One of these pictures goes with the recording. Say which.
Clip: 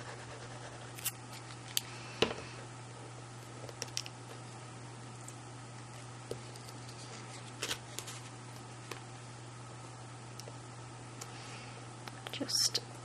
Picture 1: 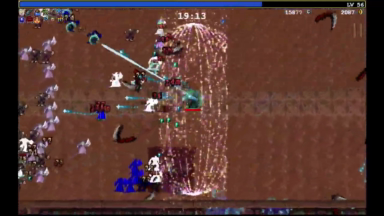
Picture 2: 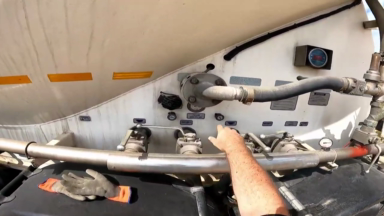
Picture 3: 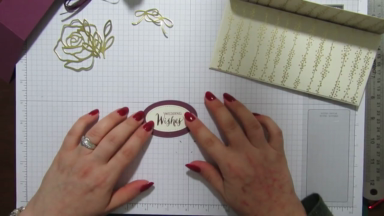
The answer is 3